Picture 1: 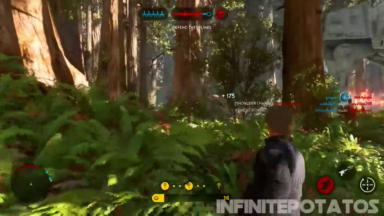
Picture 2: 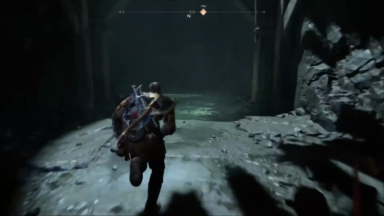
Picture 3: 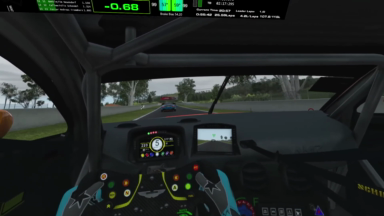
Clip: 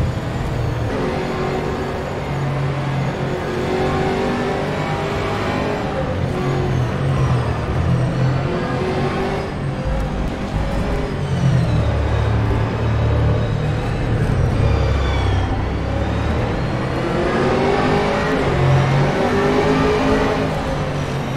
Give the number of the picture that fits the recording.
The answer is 3